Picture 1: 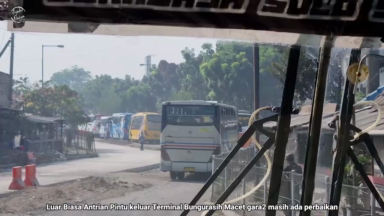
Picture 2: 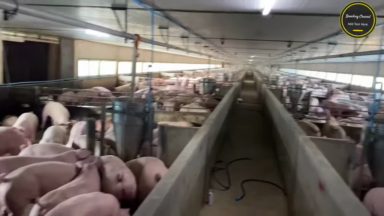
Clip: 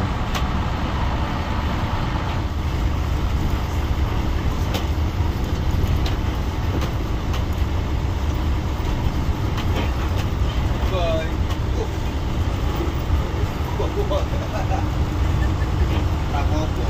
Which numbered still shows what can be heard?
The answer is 1